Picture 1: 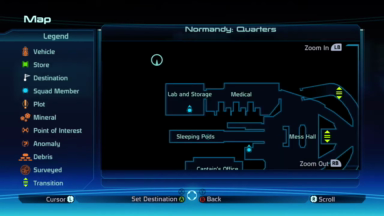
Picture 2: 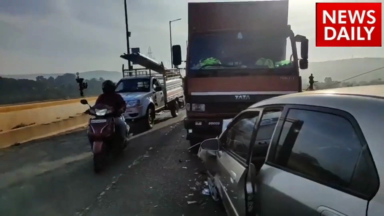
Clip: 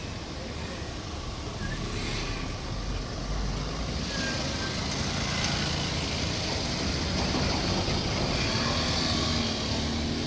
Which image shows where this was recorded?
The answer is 2